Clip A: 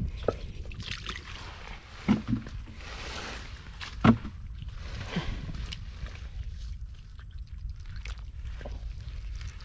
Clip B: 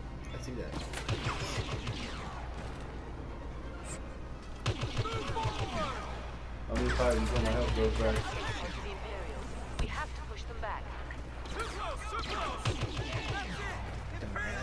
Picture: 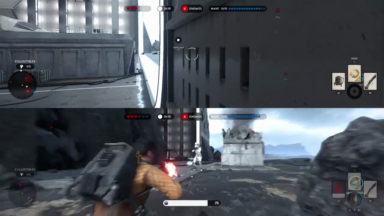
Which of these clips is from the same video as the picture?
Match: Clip B